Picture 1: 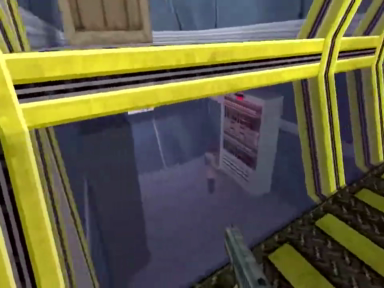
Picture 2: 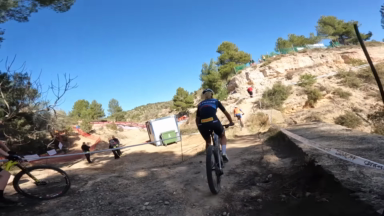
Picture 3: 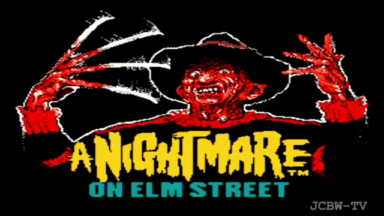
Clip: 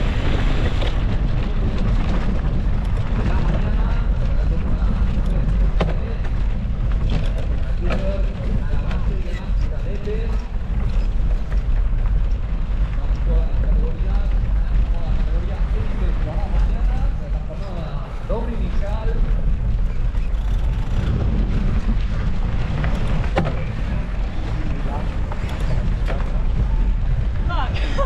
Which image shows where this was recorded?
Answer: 2